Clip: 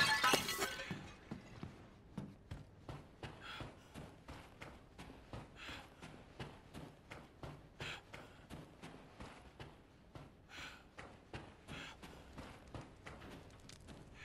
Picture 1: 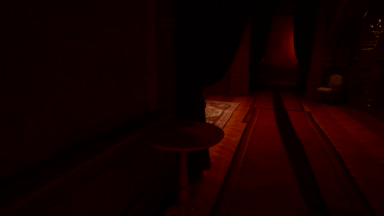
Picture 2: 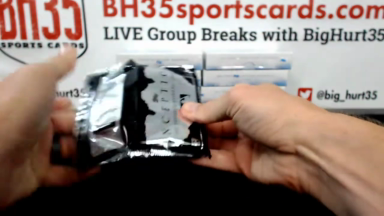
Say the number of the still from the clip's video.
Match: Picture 1